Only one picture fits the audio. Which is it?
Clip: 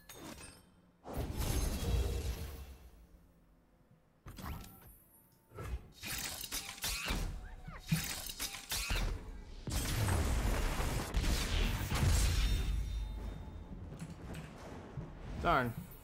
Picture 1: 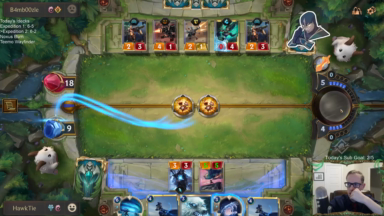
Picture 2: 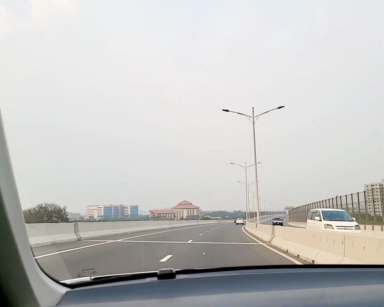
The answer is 1